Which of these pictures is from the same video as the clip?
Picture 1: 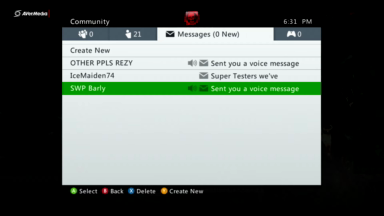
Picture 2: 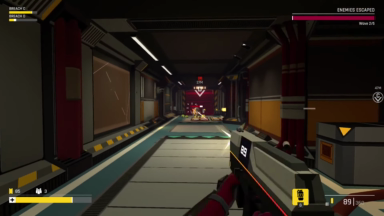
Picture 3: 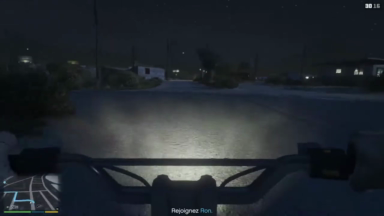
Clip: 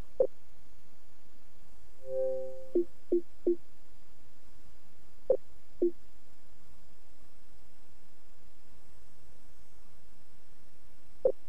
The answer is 1